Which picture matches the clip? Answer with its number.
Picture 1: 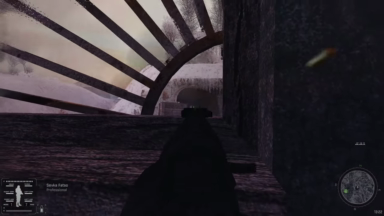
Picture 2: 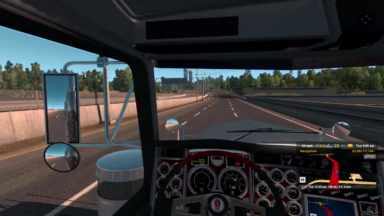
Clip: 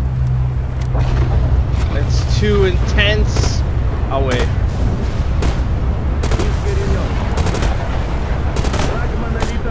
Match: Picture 1